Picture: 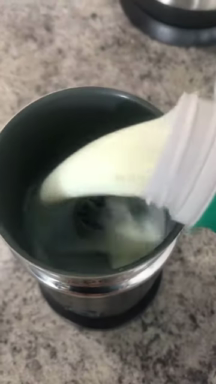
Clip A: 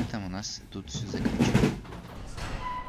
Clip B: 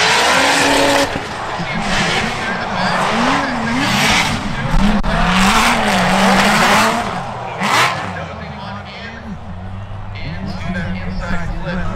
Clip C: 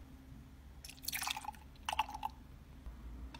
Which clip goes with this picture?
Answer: C